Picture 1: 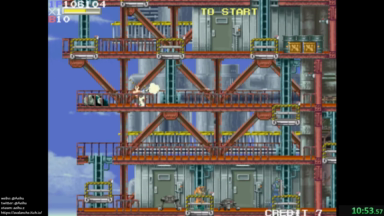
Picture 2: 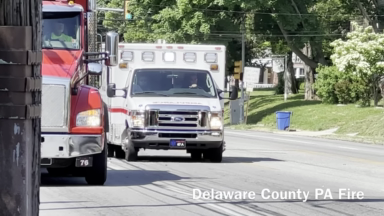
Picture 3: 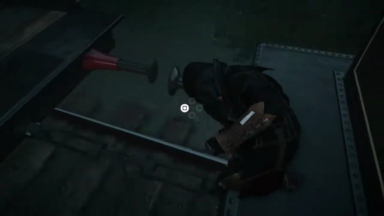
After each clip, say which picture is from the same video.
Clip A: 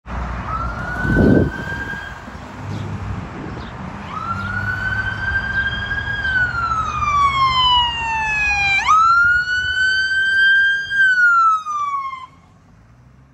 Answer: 2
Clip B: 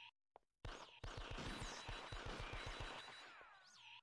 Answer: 1